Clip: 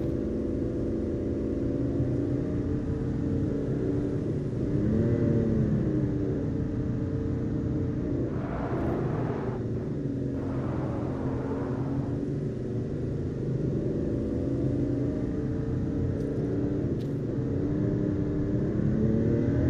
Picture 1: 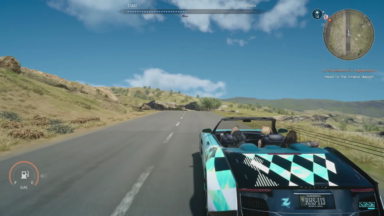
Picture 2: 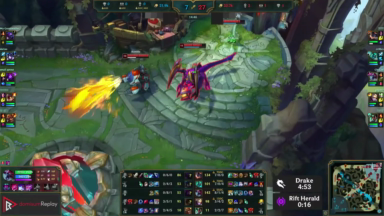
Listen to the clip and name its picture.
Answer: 1